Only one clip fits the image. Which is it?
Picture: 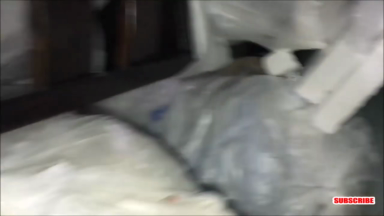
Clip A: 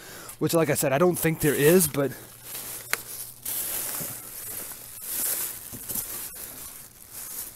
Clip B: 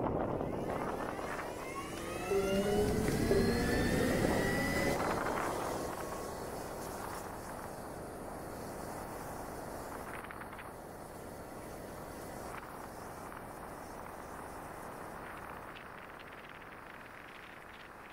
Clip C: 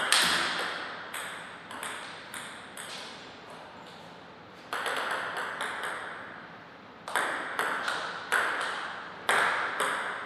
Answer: A